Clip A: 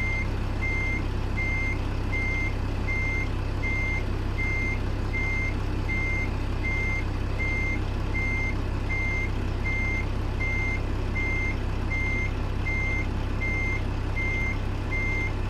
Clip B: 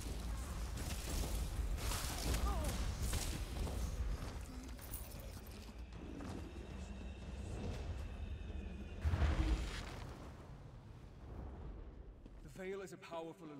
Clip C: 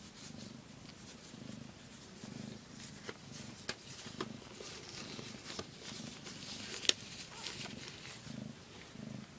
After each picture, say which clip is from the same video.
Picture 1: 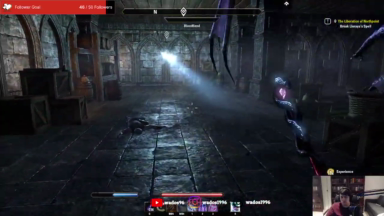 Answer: B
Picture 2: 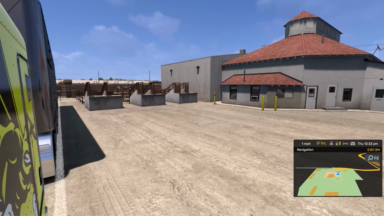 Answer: A